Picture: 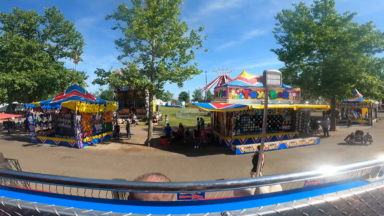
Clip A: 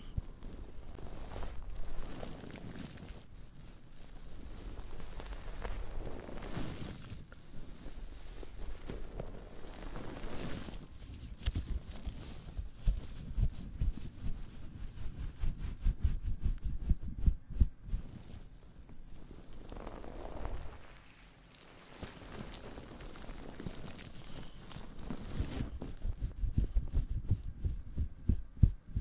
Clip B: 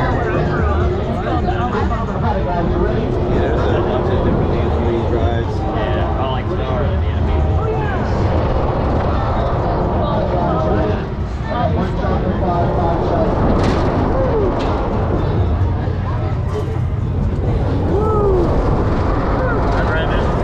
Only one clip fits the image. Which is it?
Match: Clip B